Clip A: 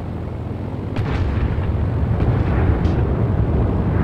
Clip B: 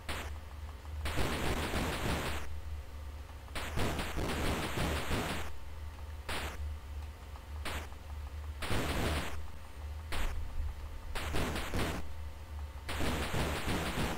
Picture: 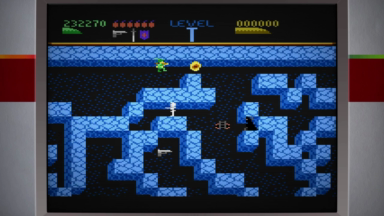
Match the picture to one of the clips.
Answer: B